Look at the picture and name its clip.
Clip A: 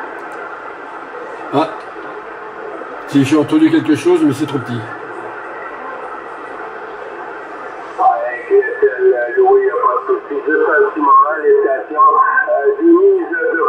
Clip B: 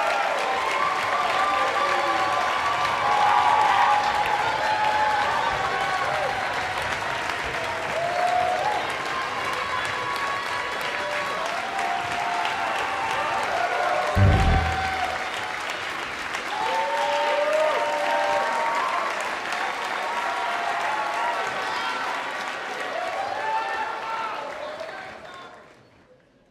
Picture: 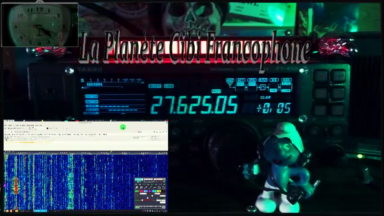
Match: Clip A